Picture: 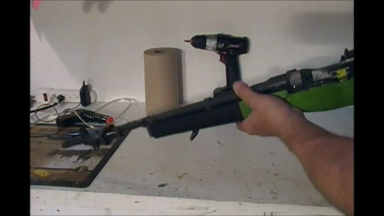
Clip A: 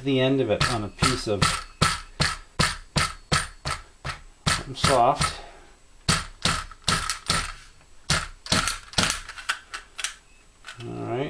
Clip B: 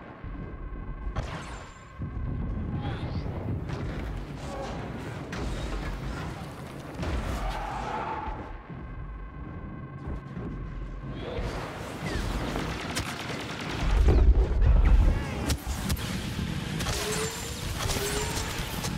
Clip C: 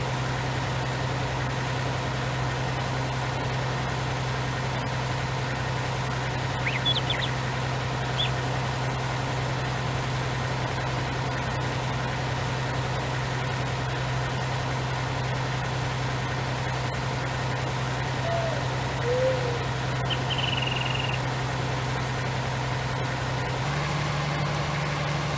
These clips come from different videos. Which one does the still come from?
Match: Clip A